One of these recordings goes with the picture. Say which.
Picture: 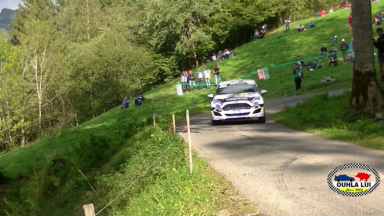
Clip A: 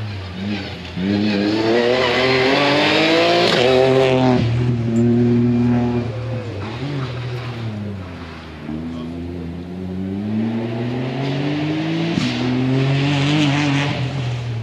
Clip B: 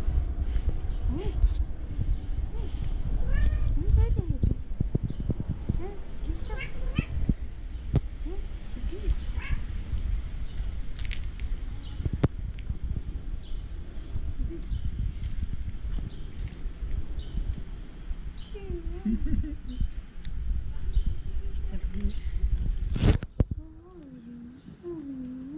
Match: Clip A